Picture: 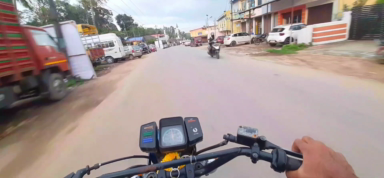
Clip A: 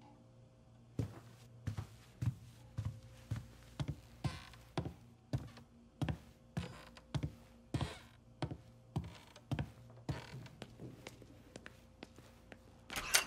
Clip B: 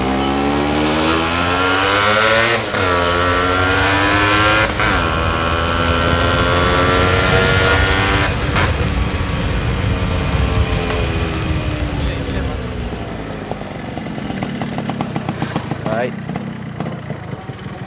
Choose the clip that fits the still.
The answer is B